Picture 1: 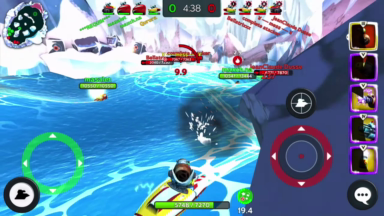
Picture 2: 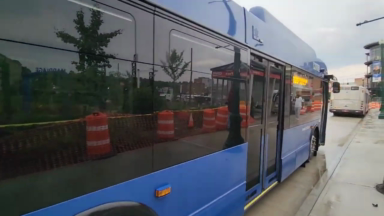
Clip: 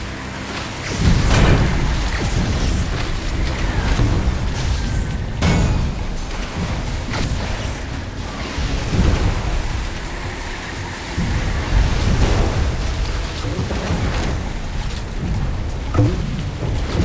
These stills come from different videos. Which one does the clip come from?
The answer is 1